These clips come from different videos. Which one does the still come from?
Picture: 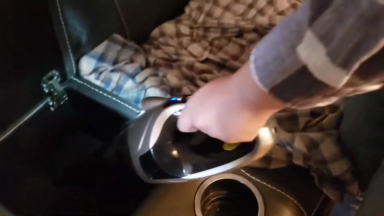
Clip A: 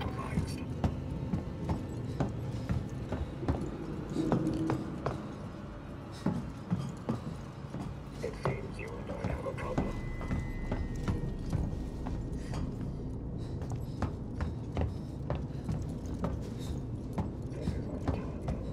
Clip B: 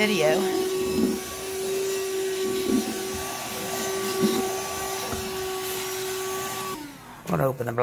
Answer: B